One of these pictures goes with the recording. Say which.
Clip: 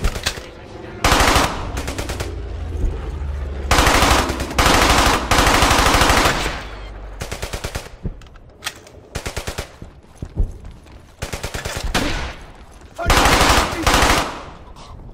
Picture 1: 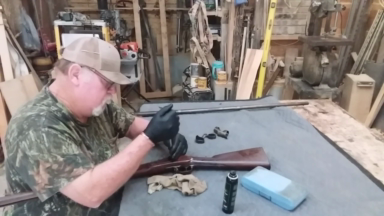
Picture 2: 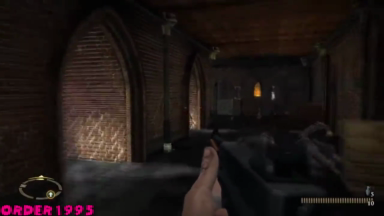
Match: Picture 2